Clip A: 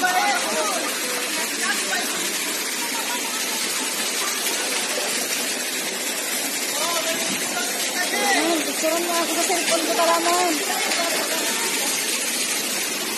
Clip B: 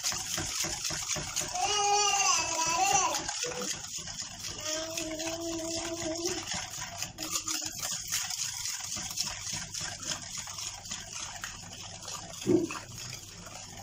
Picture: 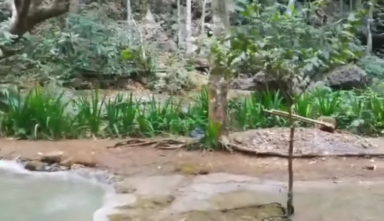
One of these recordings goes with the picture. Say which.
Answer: A